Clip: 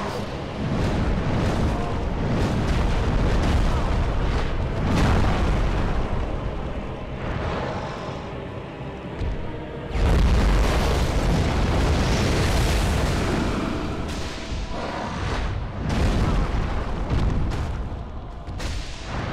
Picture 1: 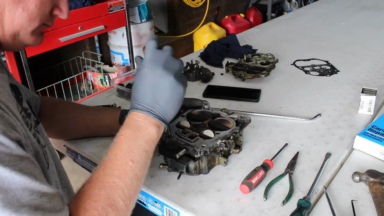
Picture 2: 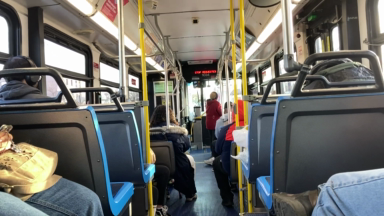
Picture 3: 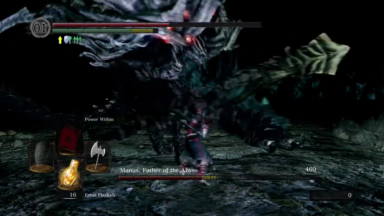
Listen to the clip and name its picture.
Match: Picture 3